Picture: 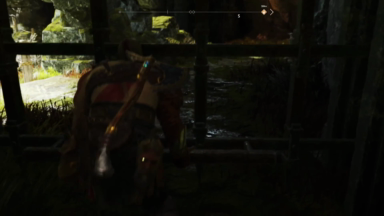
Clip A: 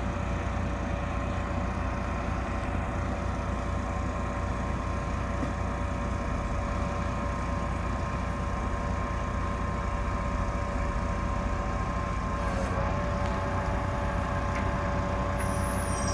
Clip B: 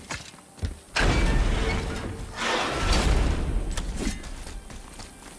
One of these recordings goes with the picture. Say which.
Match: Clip B